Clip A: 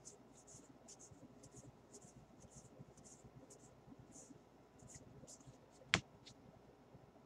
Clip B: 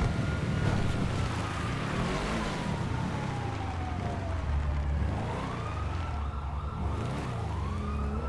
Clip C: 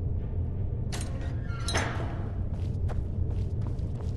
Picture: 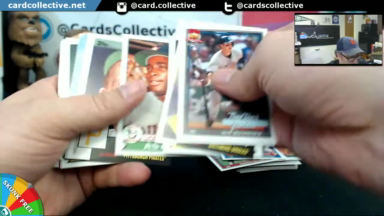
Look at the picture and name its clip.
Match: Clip A